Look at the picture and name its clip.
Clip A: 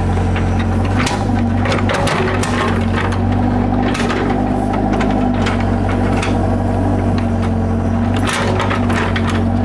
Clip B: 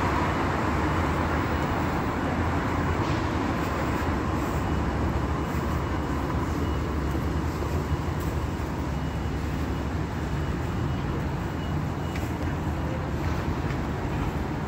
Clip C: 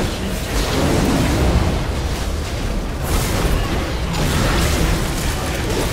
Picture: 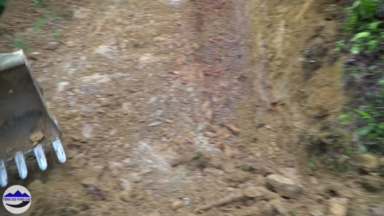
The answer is A